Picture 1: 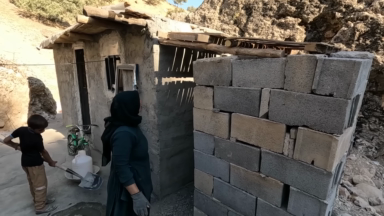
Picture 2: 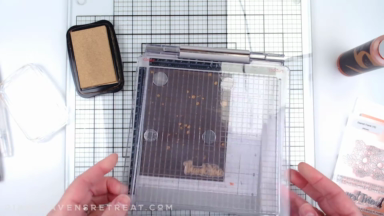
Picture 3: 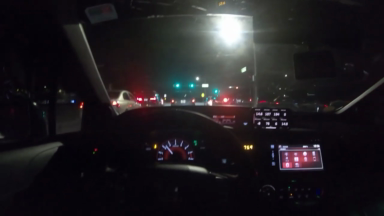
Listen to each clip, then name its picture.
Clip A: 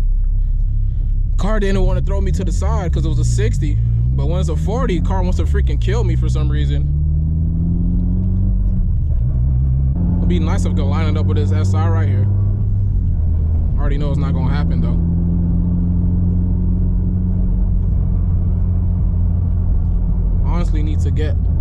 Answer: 3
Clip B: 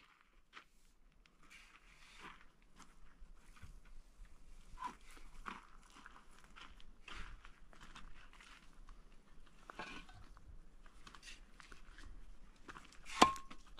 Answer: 1